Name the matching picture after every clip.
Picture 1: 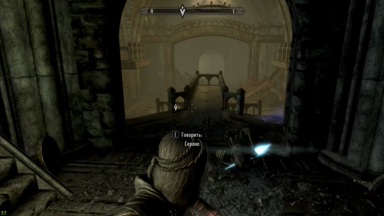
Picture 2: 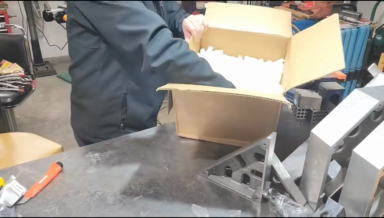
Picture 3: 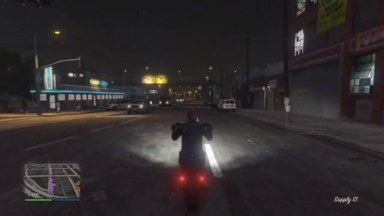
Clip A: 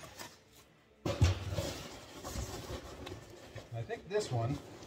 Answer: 2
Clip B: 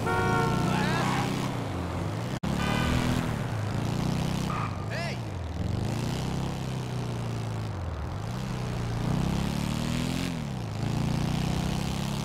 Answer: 3